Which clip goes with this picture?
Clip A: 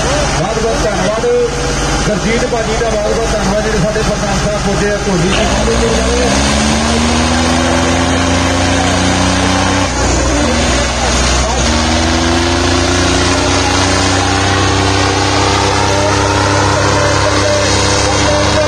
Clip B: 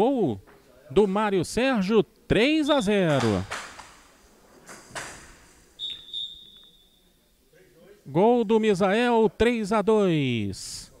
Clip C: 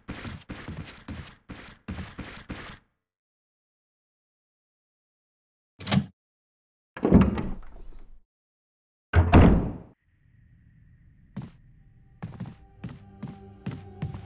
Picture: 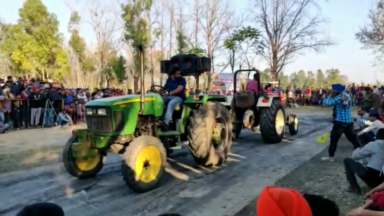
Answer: A